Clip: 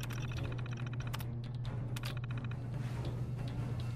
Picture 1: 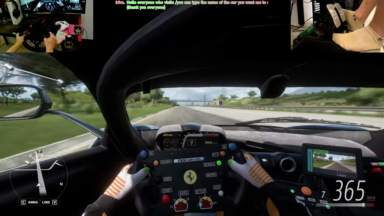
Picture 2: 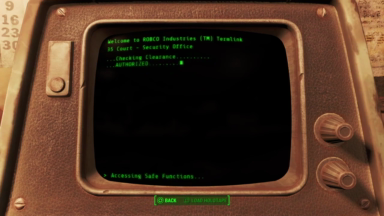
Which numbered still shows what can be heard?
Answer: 2